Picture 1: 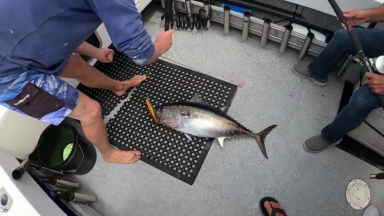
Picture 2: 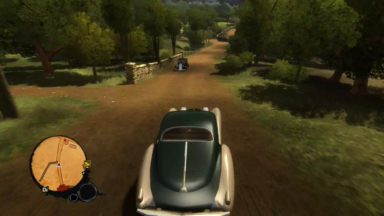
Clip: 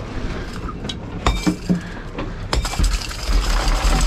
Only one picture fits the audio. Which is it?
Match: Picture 1